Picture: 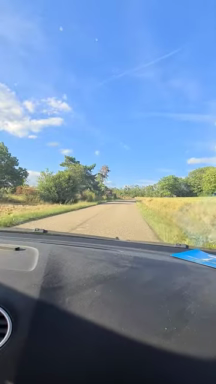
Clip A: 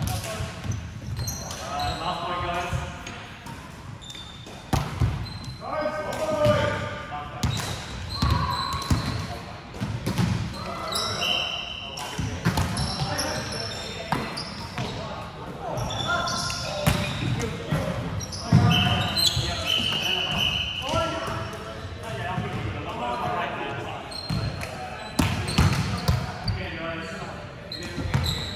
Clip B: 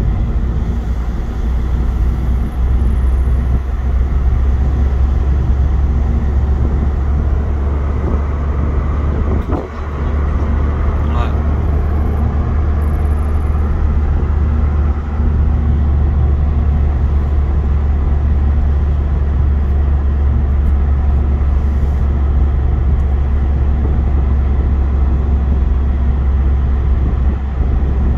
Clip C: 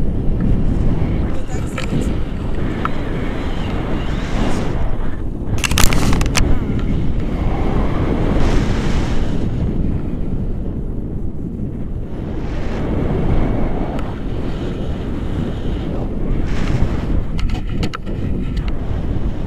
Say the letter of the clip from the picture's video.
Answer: B